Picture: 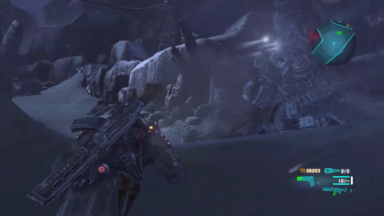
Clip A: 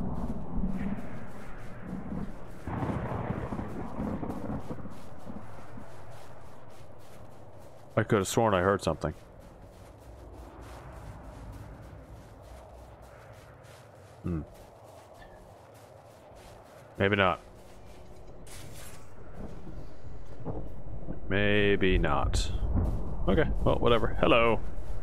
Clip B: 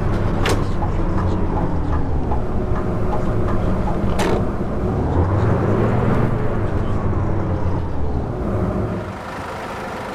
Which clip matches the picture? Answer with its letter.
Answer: A